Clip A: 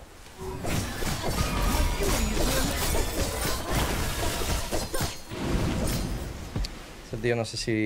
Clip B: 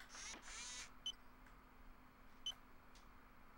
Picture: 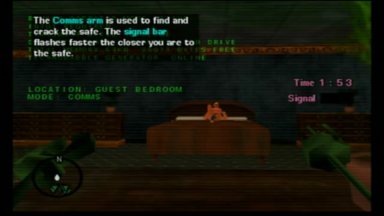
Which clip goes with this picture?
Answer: B